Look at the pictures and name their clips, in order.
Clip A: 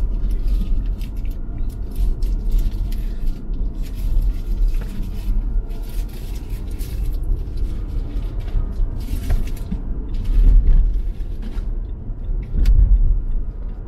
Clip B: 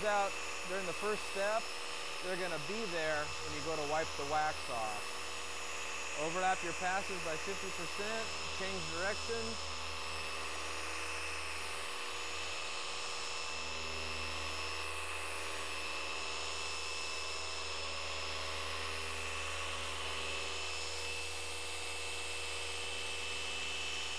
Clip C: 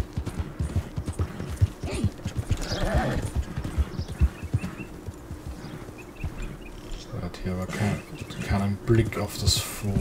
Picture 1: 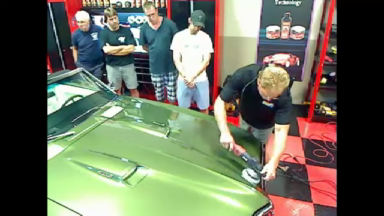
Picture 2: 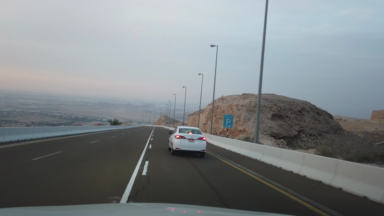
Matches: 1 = B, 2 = A